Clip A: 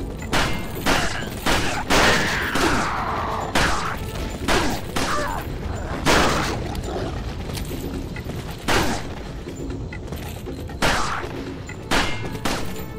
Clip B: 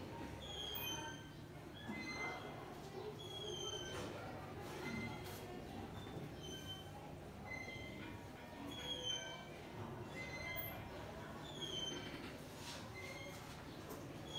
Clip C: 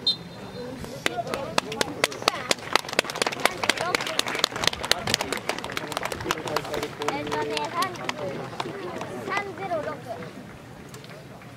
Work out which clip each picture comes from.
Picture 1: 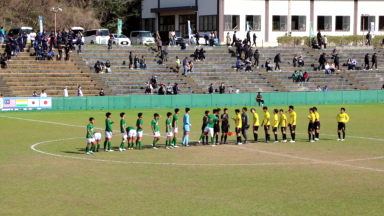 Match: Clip C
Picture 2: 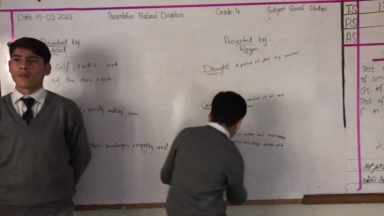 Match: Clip B